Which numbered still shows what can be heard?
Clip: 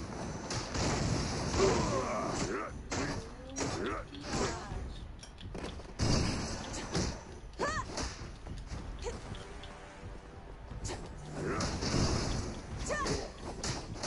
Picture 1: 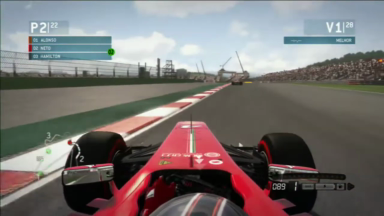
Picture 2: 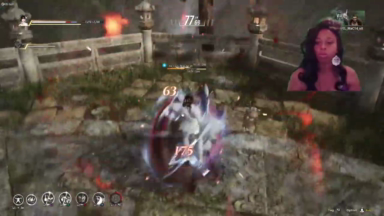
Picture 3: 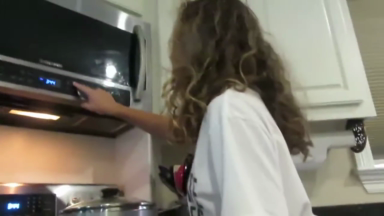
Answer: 2